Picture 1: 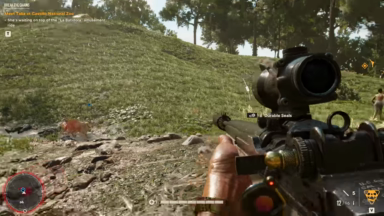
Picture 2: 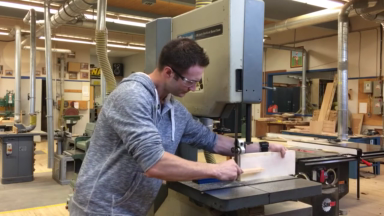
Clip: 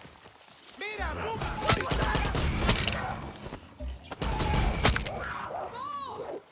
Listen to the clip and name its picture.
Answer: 1